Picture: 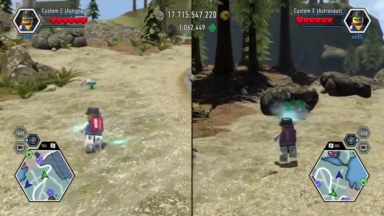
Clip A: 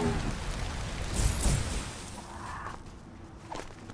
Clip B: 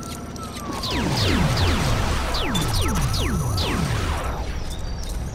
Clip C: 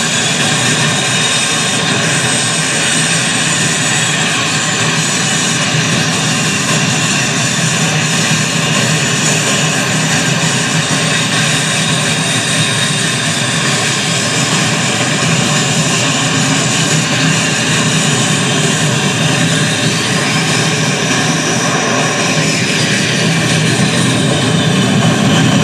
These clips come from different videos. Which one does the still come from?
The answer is B